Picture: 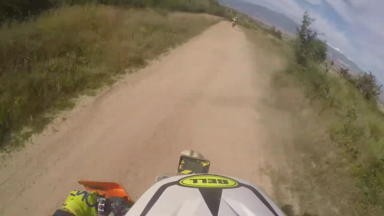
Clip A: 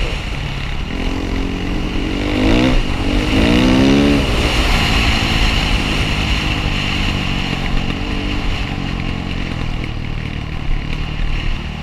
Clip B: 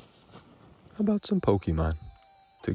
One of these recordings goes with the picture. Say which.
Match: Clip A